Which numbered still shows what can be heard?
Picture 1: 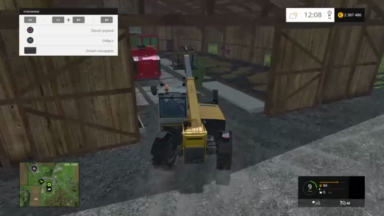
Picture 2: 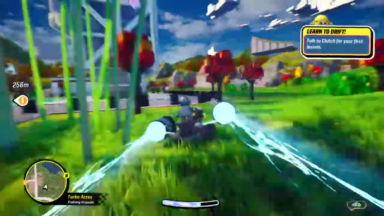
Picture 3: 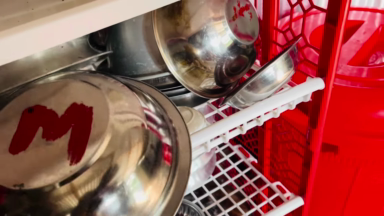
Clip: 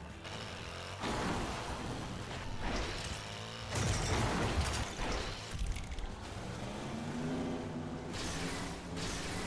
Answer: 2